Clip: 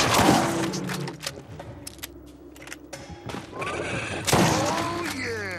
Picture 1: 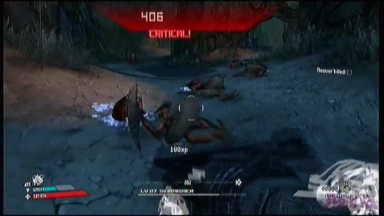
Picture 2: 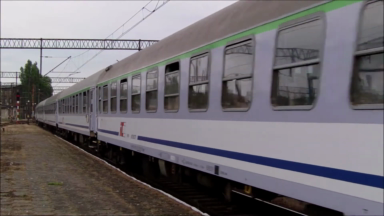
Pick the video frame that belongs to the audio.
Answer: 1